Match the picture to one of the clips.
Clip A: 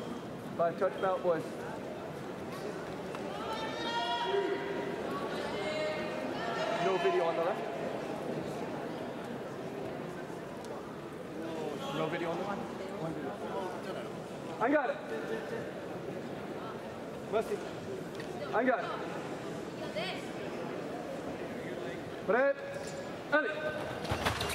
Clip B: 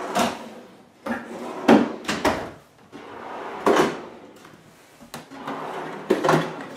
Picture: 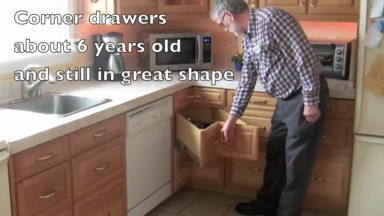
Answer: B